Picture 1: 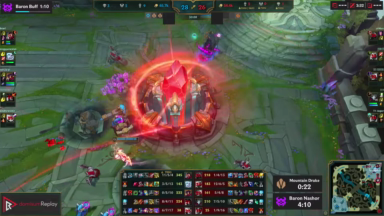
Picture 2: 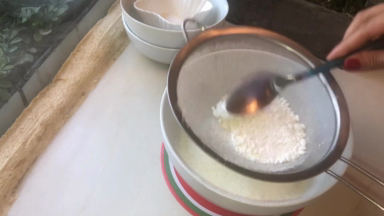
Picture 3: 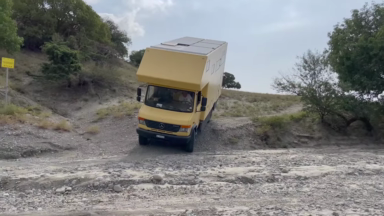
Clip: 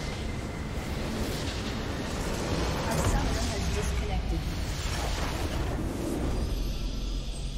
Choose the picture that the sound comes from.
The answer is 1